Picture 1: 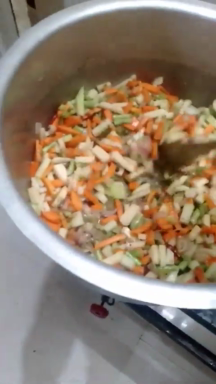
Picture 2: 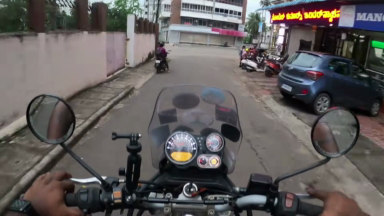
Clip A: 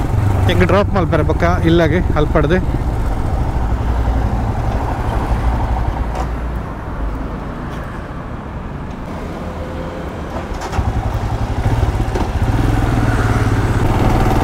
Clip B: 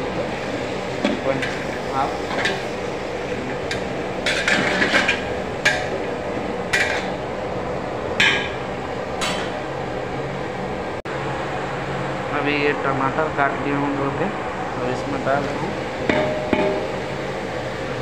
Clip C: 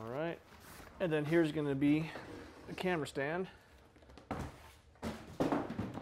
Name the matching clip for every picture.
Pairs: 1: B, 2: A